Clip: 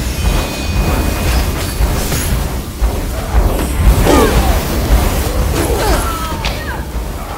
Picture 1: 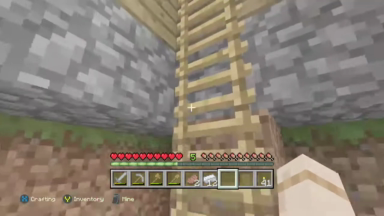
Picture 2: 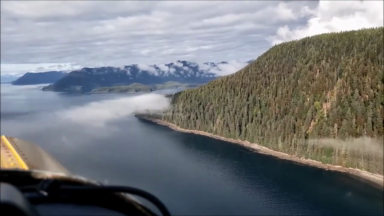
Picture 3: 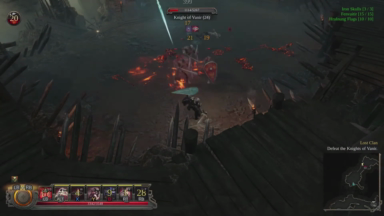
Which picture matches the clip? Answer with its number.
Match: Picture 3